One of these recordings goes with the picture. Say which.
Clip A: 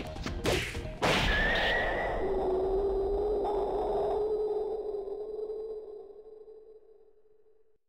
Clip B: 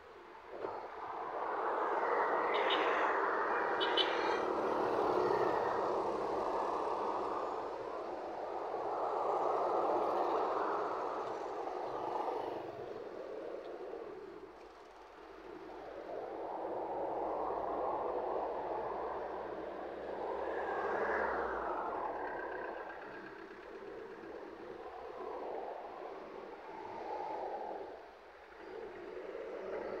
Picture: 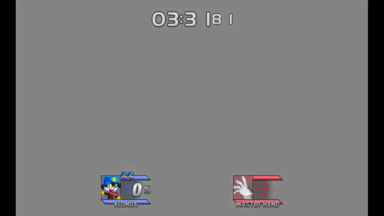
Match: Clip A